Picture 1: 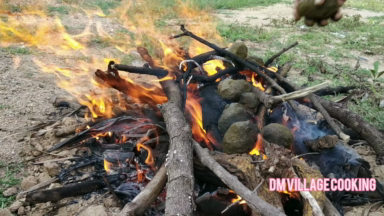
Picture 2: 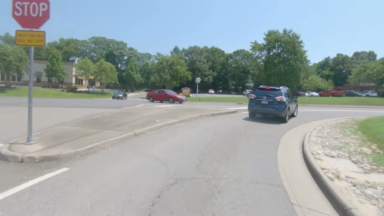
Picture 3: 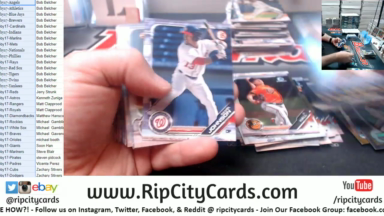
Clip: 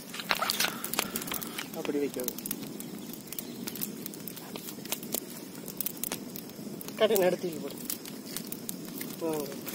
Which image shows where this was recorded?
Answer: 1